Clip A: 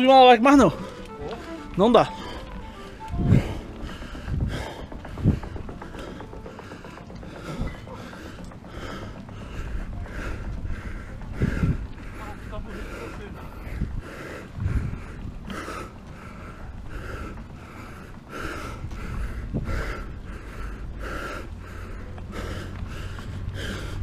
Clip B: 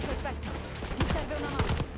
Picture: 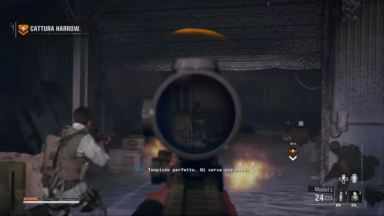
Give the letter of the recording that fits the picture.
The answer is B